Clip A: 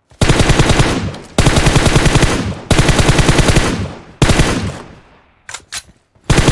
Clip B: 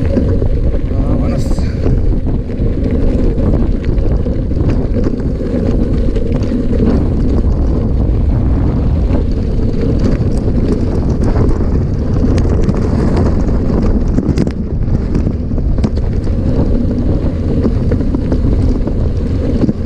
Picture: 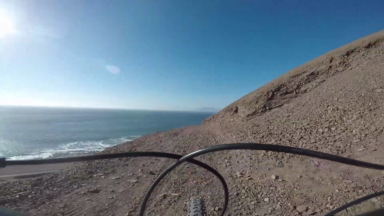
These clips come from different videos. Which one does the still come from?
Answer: B